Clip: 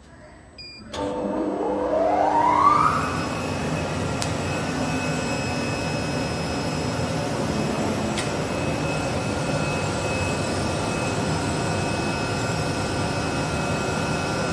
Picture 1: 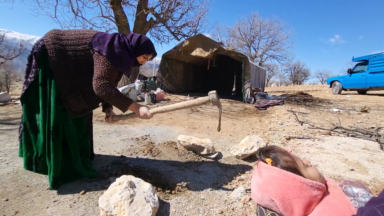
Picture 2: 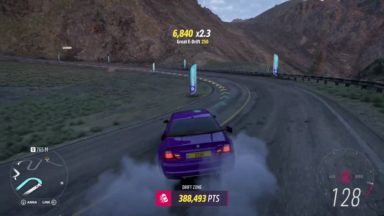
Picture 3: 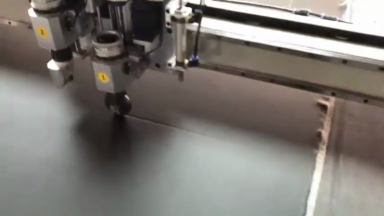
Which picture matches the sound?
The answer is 3